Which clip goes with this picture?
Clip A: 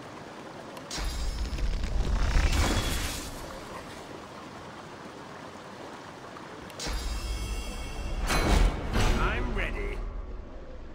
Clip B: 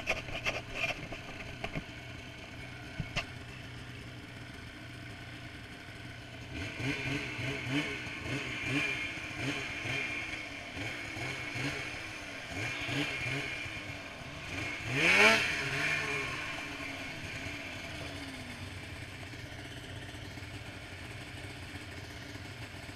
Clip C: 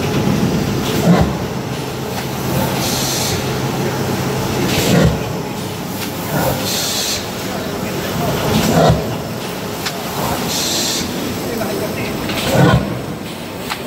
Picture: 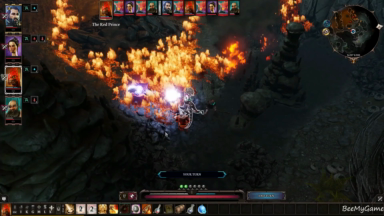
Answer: A